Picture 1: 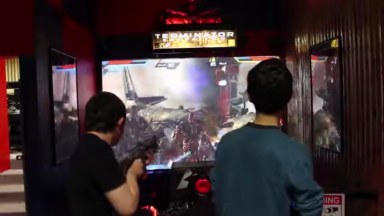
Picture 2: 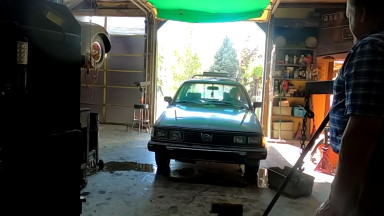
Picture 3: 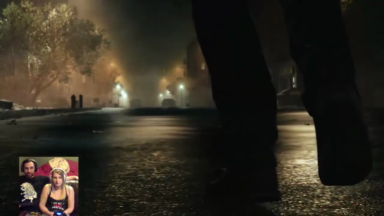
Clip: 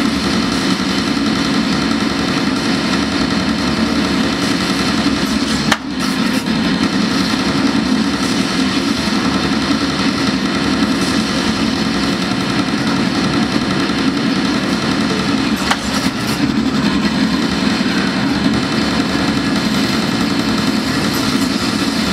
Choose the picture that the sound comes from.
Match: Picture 1